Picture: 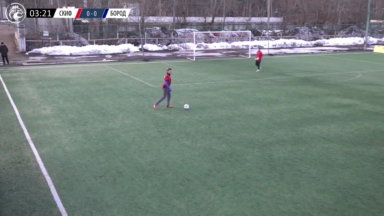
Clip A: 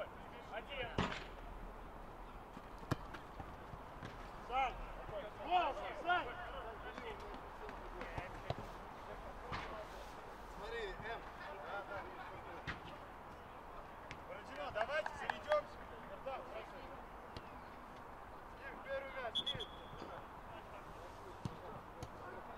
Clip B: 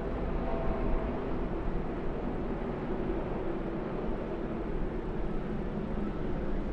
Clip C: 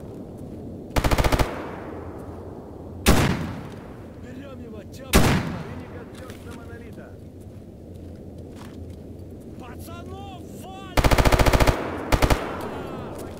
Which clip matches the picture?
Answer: A